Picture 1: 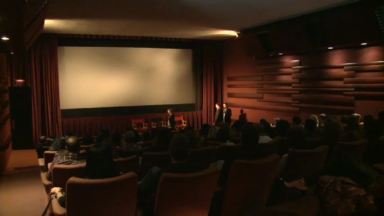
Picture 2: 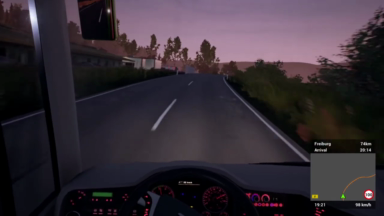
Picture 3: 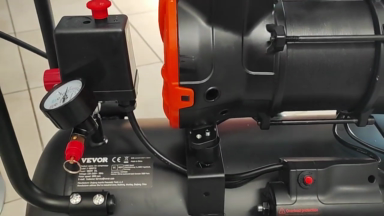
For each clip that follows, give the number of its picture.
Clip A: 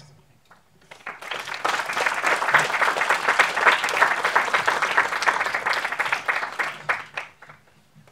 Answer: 1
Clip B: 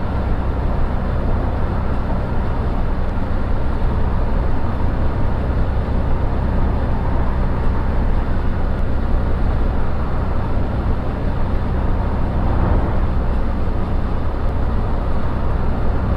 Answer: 2